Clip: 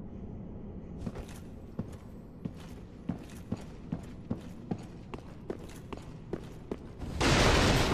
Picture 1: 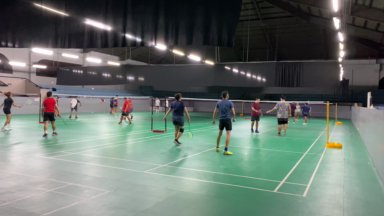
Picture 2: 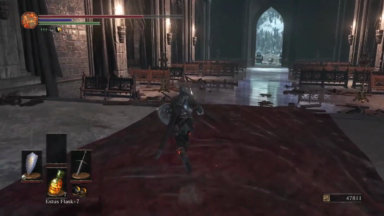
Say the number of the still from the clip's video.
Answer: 2